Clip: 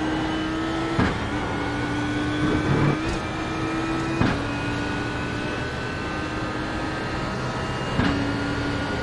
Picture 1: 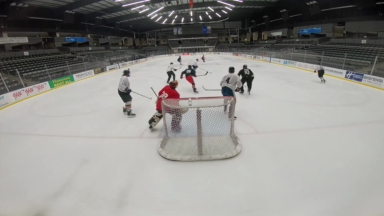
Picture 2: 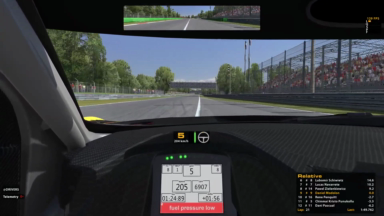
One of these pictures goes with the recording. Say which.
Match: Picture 2